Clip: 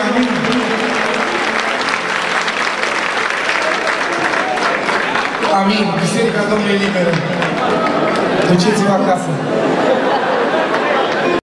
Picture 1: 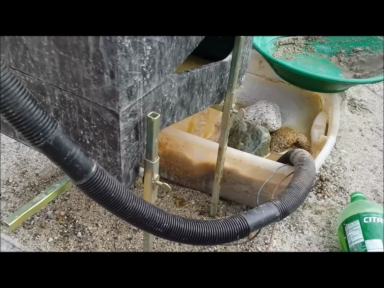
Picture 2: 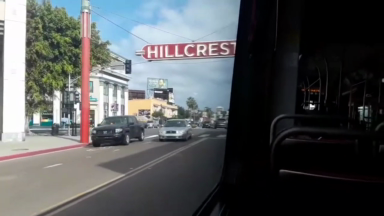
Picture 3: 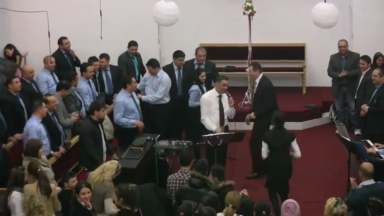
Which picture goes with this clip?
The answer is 3